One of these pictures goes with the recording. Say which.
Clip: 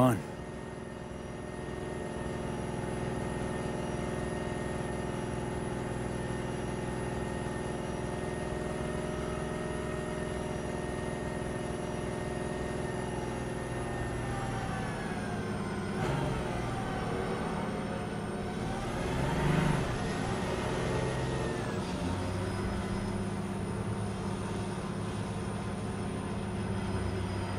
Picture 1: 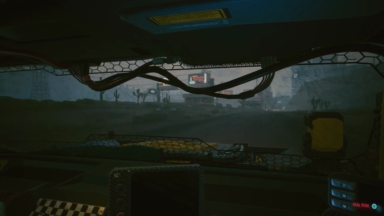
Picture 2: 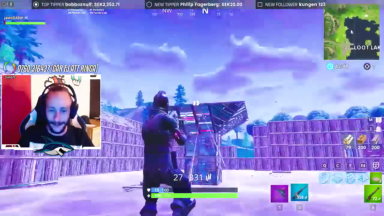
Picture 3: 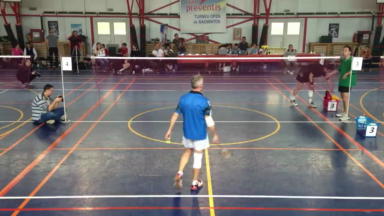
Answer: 1